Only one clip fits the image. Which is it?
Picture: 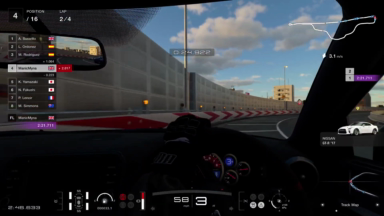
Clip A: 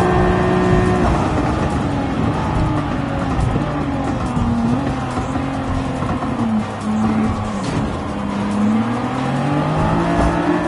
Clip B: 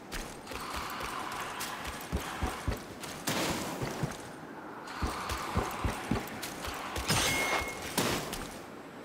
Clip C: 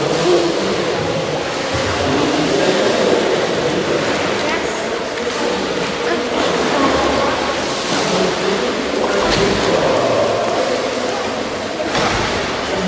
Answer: A